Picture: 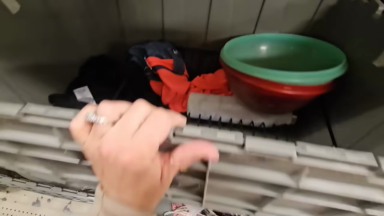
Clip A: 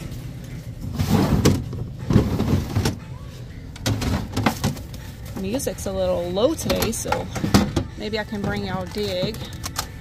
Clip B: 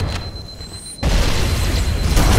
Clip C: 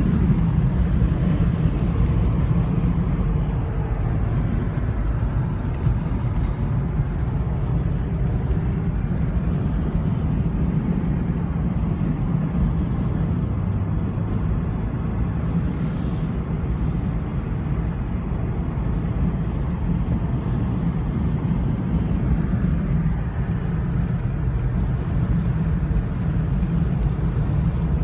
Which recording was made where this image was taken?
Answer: A